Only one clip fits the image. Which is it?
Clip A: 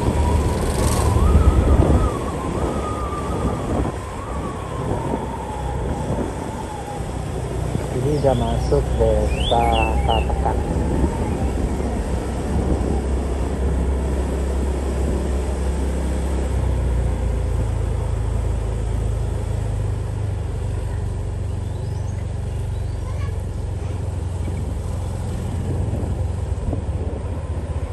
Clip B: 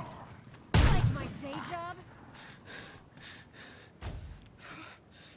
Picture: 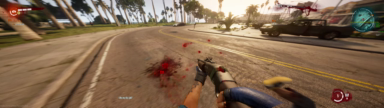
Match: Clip B